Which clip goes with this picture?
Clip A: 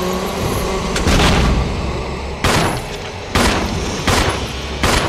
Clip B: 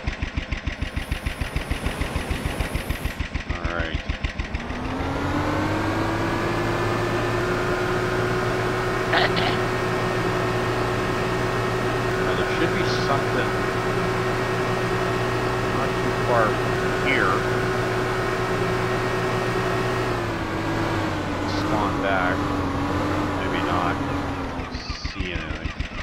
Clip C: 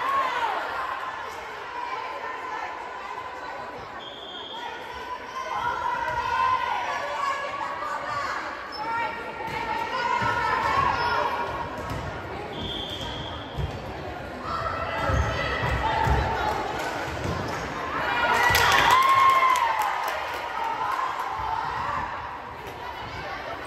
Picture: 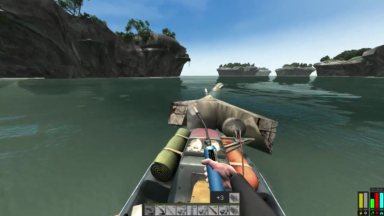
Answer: B